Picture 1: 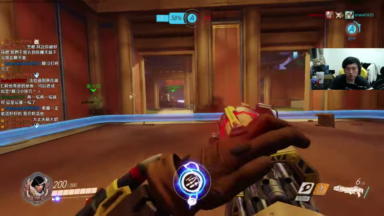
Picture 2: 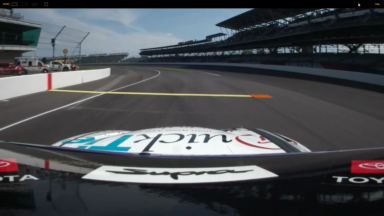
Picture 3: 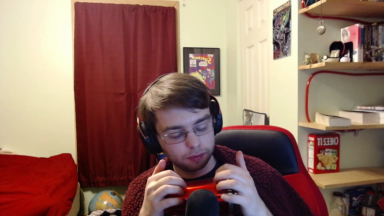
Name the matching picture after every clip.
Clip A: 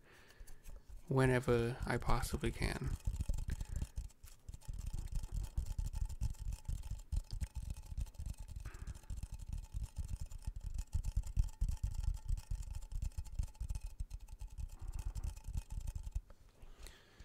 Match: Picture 3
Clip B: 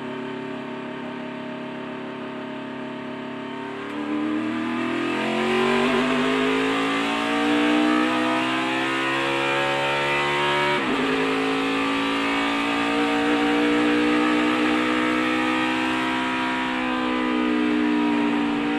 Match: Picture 2